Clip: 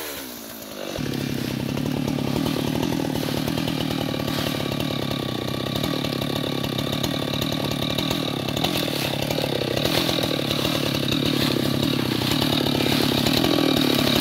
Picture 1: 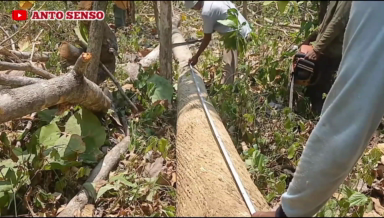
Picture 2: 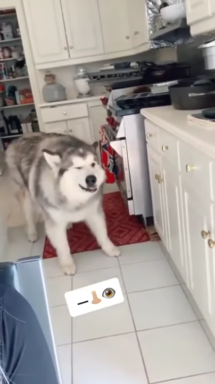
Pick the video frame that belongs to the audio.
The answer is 1